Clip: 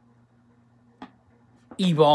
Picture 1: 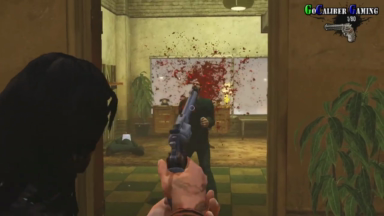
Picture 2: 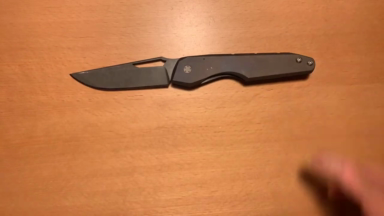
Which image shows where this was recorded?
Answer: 2